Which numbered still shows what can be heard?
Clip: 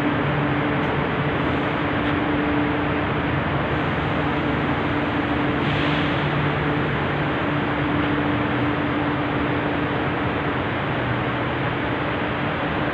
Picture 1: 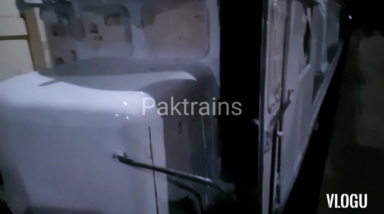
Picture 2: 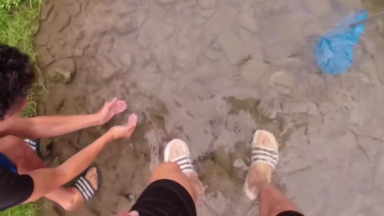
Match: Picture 1